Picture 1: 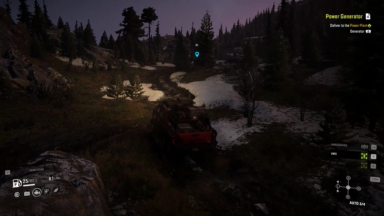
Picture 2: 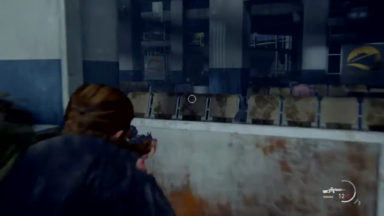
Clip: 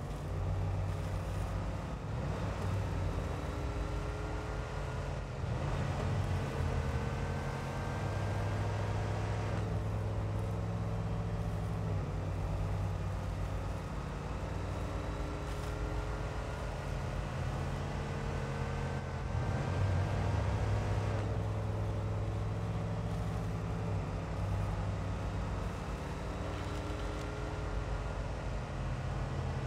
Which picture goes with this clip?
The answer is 1